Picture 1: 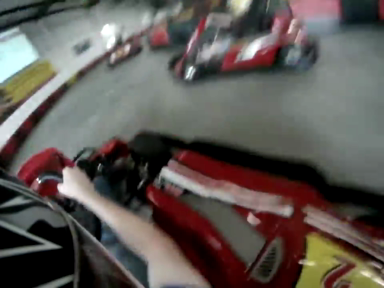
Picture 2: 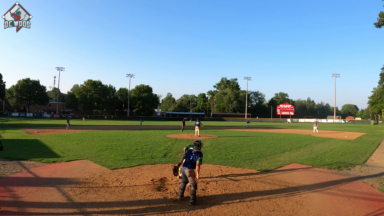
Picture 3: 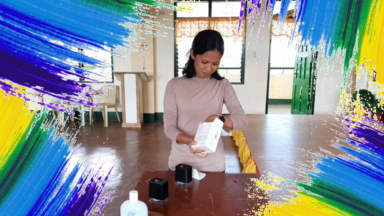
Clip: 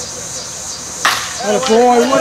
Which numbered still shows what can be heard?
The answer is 2